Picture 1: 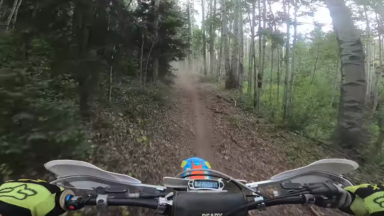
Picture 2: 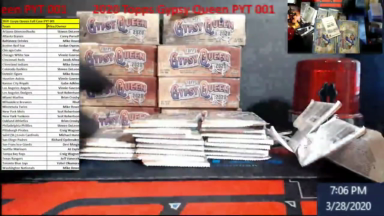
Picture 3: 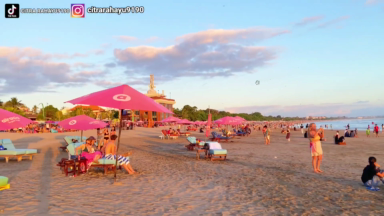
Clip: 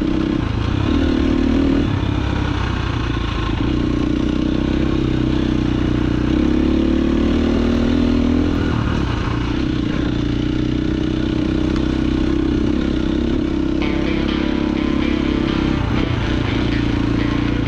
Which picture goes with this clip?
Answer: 1